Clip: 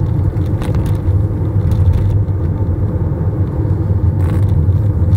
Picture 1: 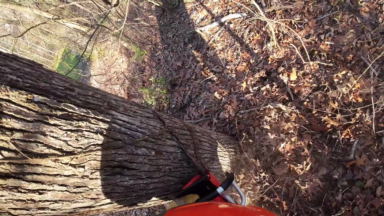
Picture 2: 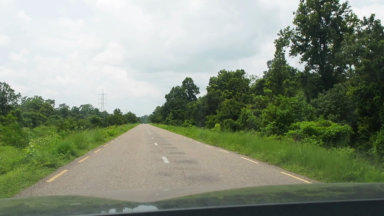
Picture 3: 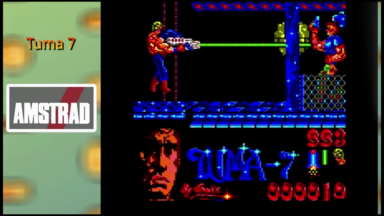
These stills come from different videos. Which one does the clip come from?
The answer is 2